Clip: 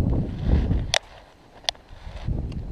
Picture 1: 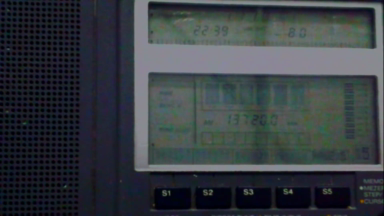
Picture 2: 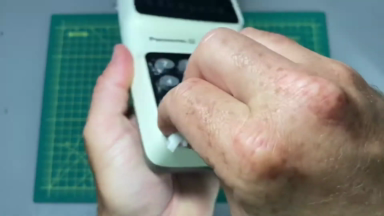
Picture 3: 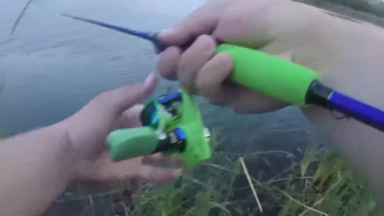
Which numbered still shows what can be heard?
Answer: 3